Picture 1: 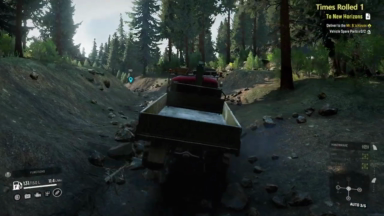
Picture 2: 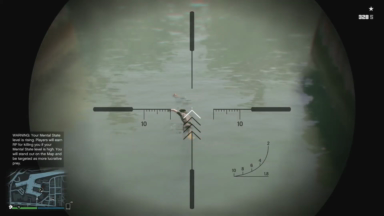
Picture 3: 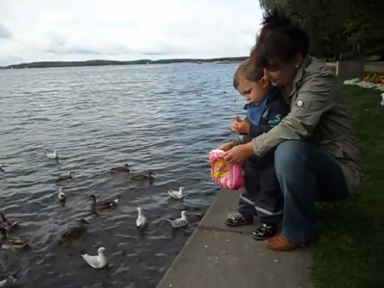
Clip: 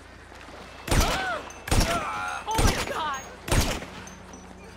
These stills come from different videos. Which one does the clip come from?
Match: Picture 2